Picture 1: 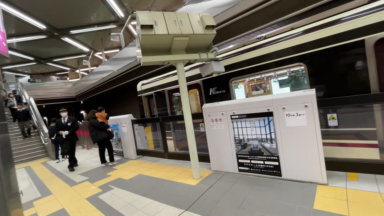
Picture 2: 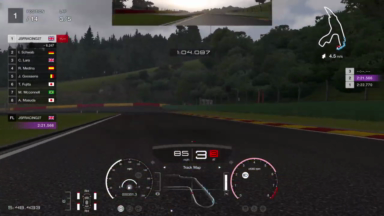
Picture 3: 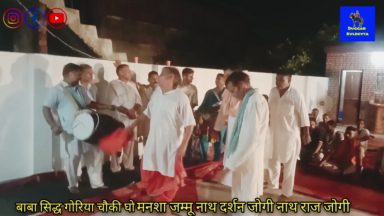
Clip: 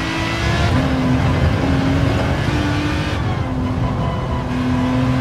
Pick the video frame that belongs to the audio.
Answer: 2